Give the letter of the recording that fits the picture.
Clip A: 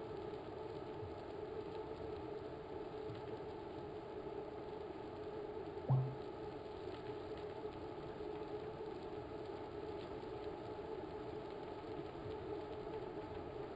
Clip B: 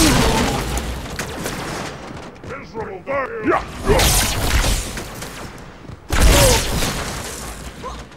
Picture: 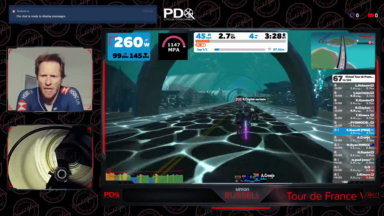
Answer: A